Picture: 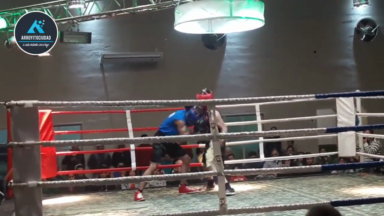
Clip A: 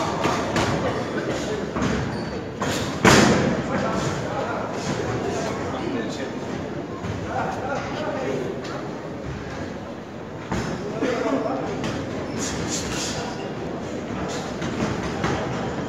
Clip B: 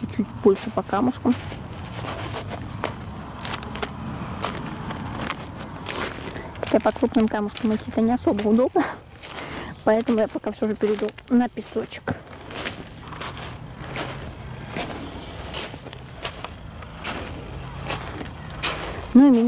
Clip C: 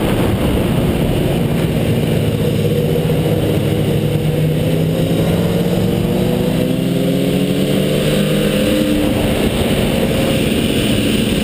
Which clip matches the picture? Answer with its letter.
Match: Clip A